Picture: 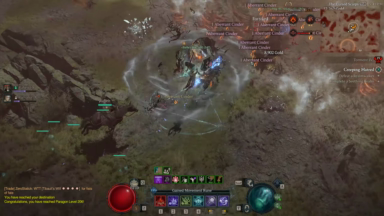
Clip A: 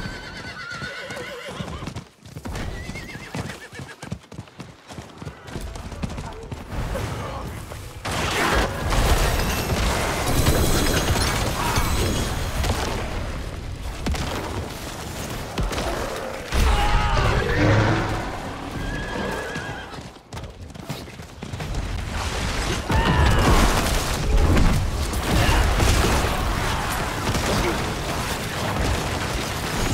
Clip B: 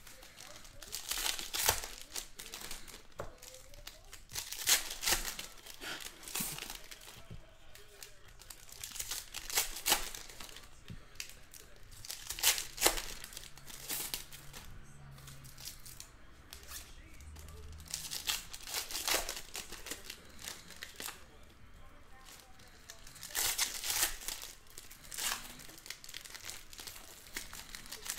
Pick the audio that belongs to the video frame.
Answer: A